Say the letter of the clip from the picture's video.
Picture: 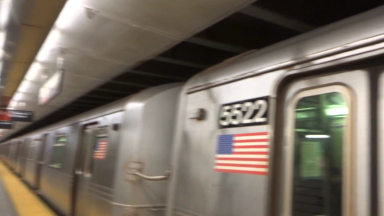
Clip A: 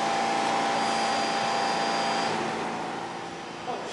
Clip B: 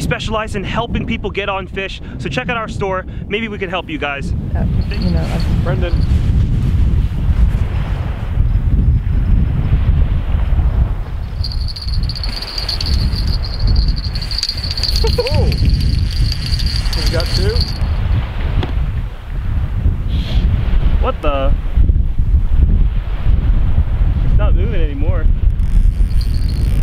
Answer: A